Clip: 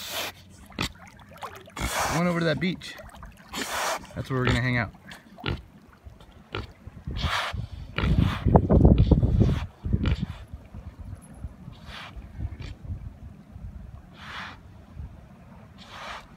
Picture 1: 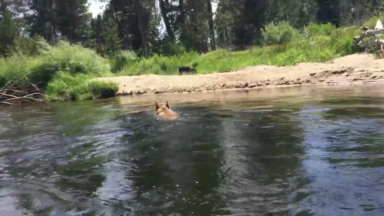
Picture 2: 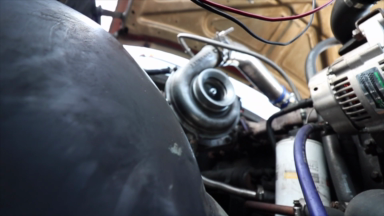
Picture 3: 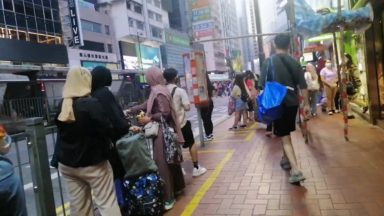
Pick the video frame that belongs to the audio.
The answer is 1